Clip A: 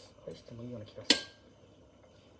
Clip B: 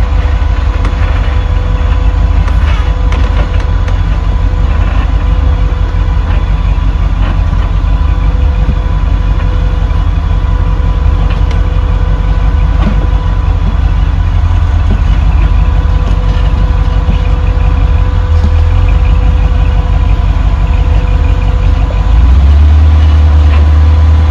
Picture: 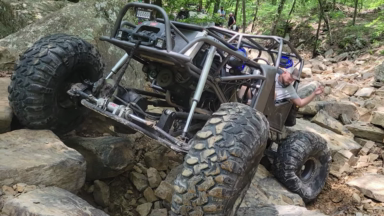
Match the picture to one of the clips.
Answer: B